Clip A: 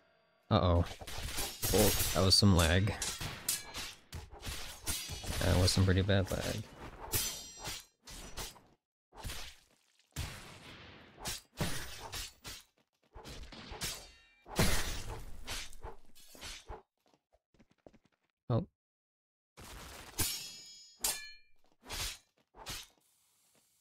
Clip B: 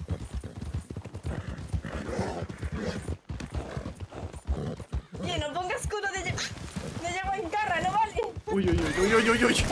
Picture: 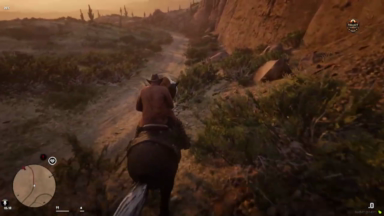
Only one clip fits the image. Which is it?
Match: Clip B